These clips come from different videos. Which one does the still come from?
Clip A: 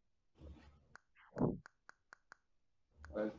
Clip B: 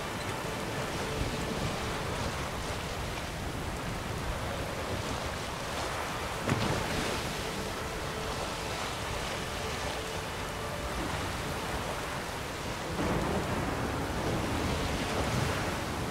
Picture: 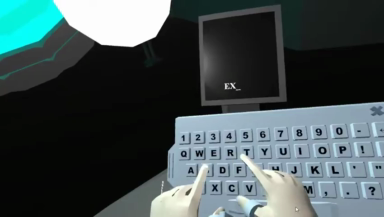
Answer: A